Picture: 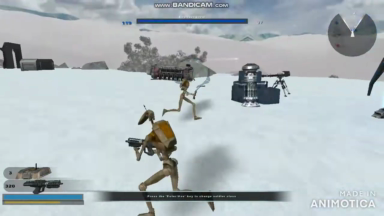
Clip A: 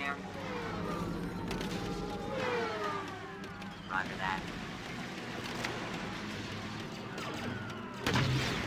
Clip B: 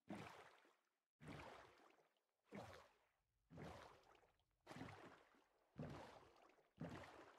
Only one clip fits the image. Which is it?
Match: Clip A